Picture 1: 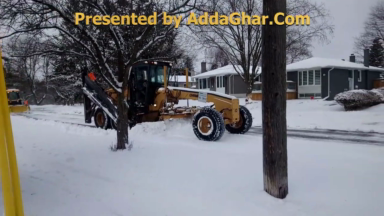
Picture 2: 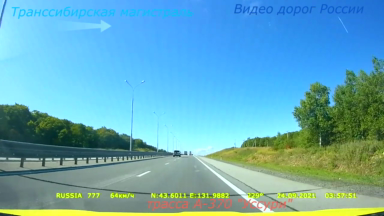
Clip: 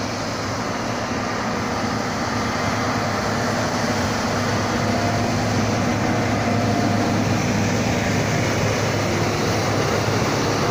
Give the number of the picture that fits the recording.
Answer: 1